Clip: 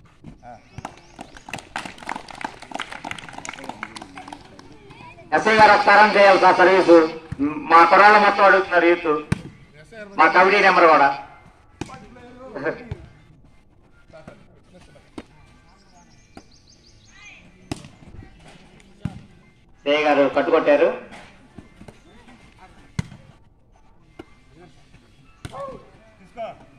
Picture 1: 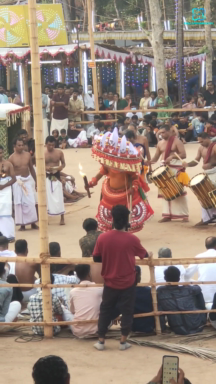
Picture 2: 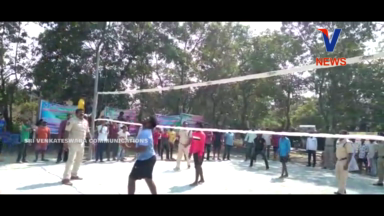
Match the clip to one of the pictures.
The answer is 2